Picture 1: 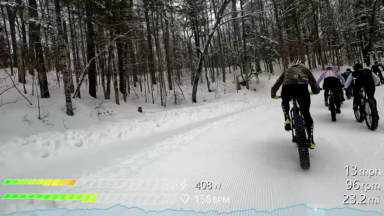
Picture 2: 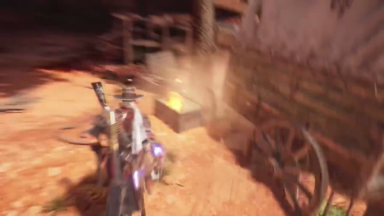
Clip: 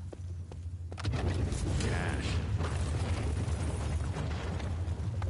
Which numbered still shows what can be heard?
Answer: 2